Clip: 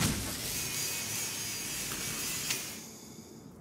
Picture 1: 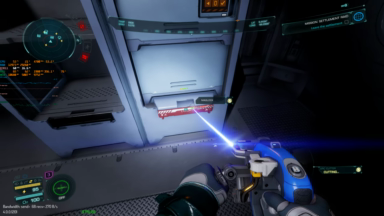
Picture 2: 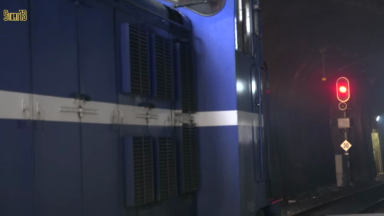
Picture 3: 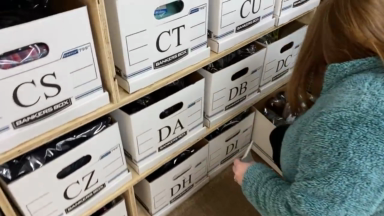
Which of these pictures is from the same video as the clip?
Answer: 1